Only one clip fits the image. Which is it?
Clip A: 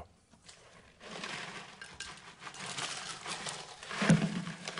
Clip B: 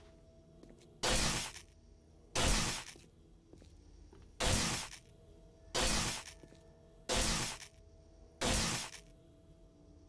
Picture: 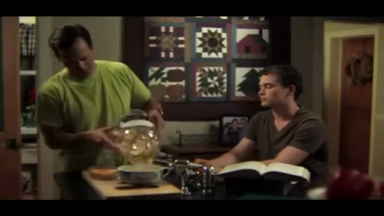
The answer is A